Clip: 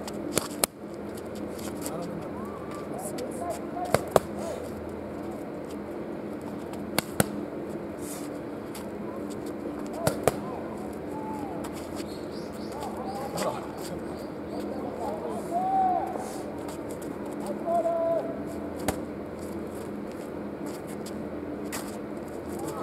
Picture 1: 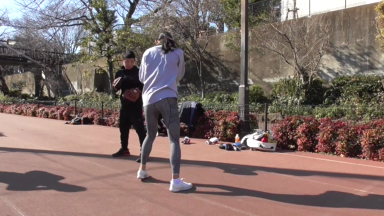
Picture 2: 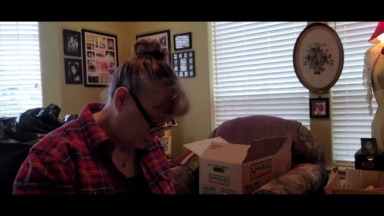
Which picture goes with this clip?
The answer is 1